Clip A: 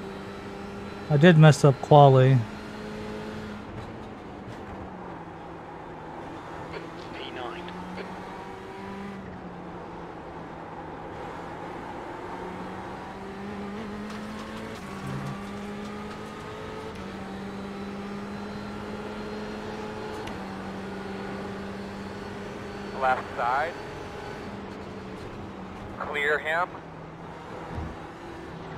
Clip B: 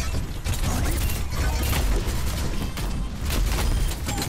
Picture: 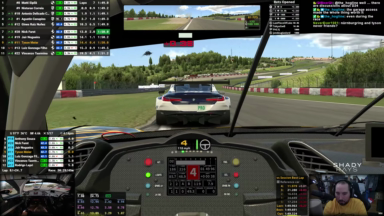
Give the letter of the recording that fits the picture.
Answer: A